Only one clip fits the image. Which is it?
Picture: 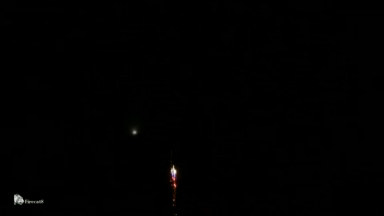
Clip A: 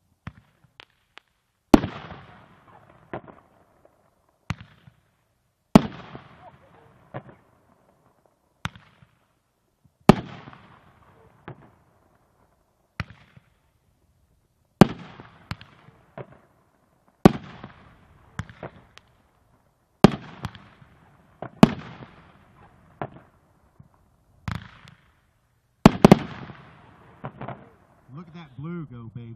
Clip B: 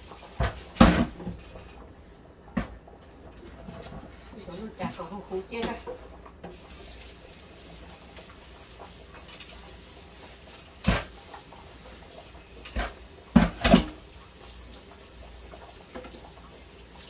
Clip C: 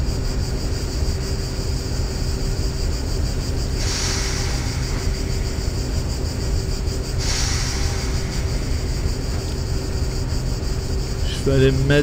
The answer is A